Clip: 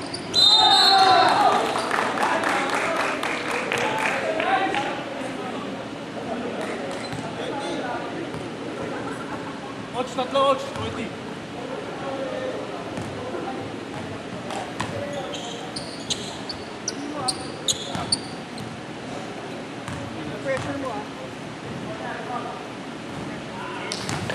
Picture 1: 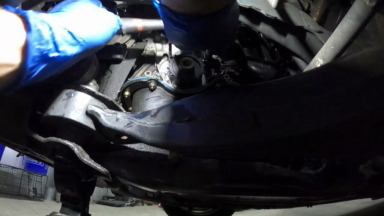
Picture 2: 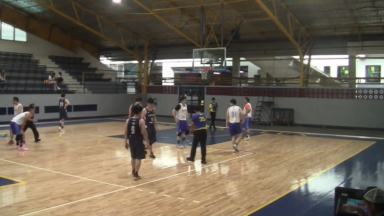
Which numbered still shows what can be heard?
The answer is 2